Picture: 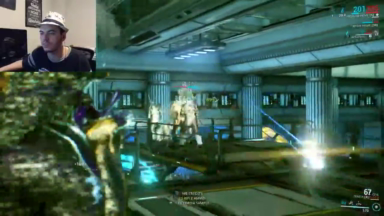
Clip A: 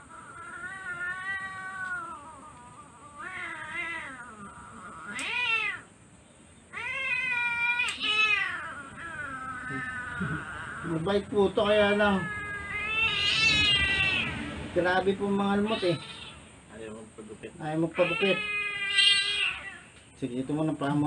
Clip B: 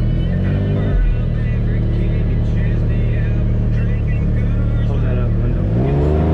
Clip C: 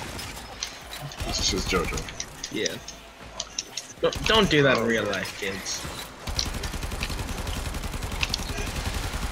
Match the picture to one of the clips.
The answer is C